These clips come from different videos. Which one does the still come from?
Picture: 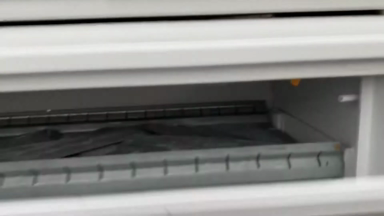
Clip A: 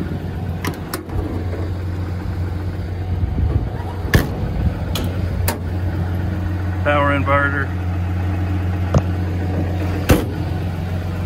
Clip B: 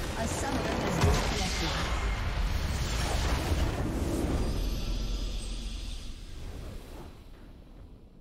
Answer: A